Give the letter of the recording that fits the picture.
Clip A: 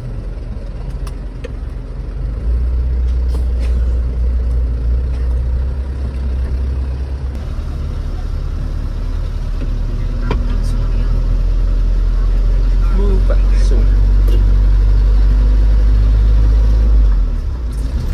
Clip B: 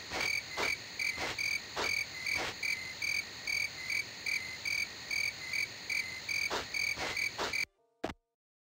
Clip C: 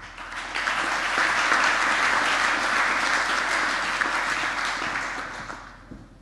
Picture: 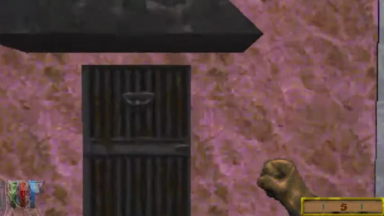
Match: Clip B